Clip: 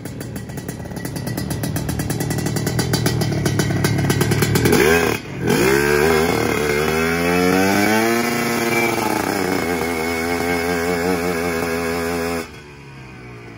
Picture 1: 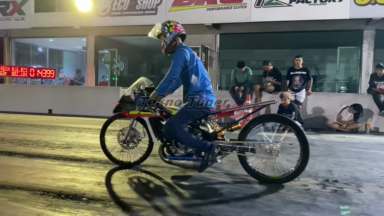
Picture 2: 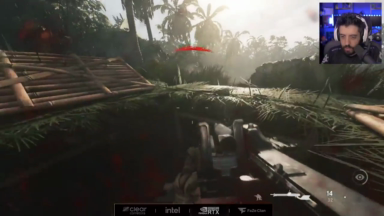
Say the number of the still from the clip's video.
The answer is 1